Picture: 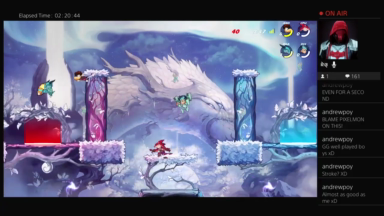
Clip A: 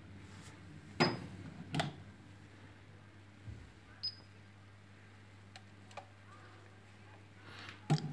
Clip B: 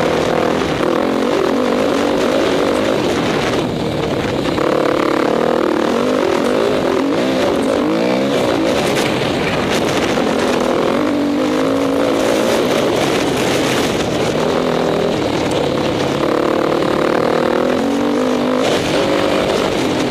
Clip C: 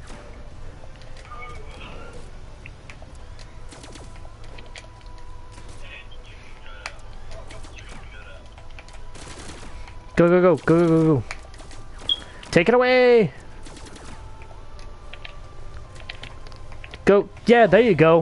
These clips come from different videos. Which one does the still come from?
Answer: C